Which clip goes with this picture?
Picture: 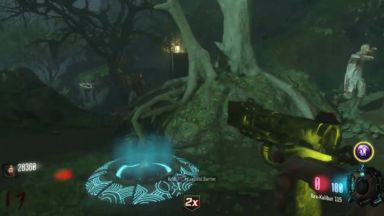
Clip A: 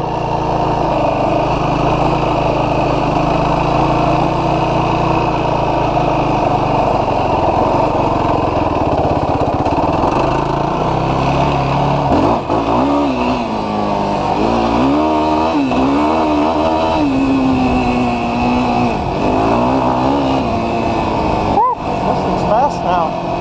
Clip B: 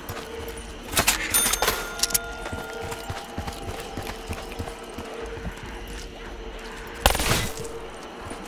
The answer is B